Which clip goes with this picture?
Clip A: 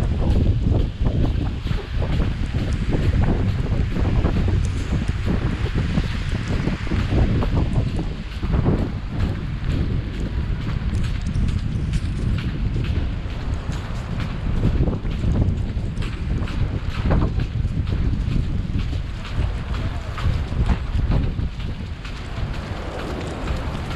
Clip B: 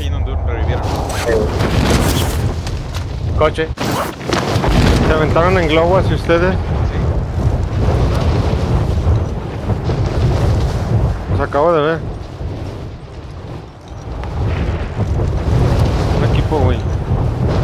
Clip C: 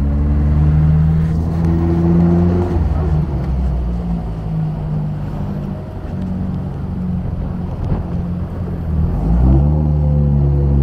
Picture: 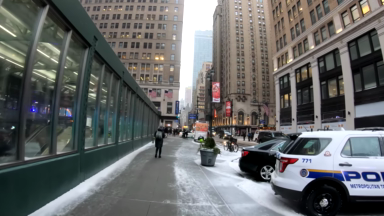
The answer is A